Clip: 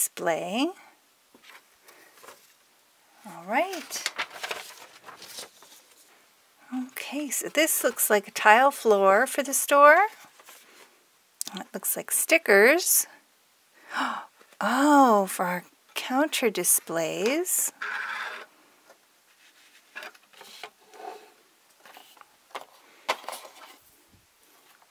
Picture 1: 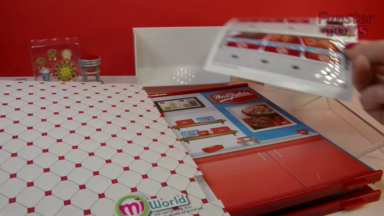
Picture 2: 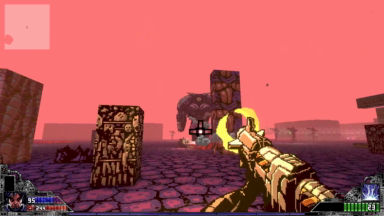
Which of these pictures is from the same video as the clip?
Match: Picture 1